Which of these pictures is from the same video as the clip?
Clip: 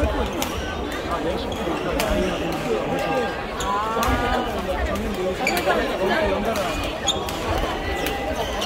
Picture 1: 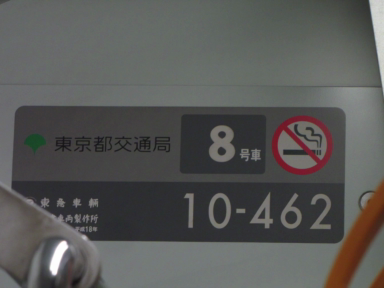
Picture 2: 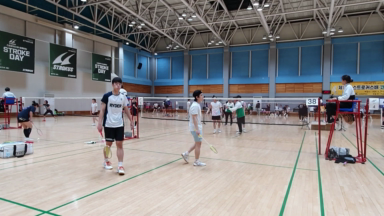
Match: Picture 2